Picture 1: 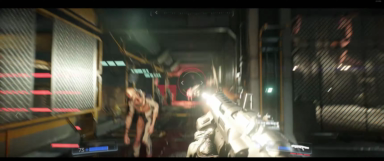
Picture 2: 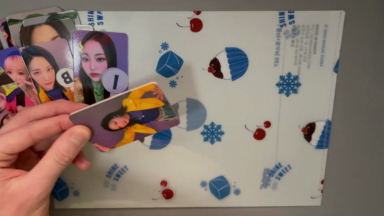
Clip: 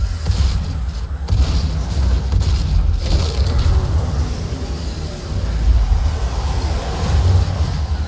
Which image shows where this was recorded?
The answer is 1